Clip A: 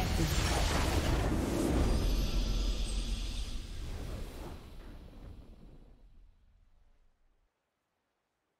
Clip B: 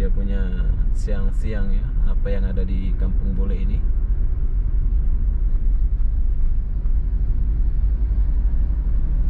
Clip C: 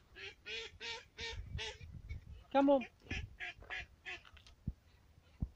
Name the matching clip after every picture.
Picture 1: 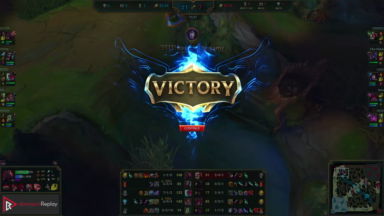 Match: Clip A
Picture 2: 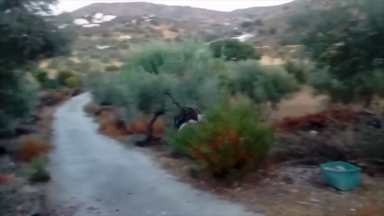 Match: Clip C